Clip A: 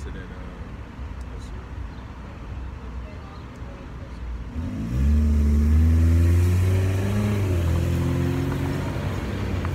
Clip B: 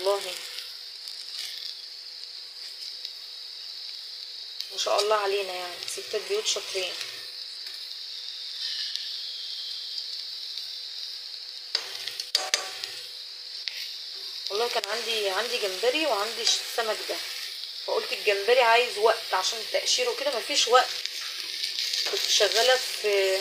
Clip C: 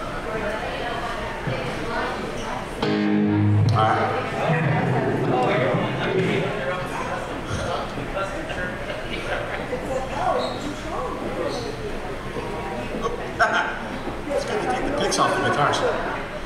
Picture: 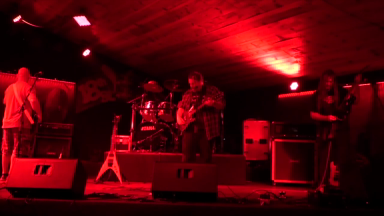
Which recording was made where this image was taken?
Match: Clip C